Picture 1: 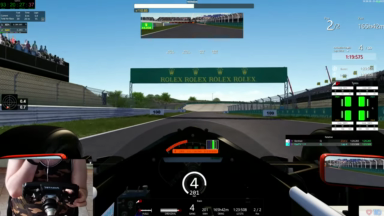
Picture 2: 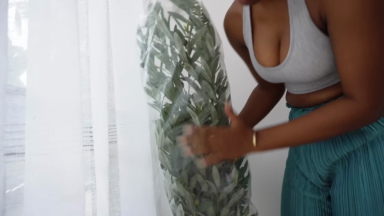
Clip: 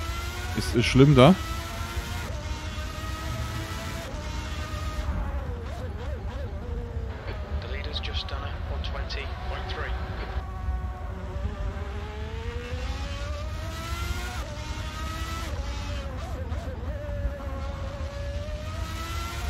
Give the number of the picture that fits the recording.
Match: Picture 1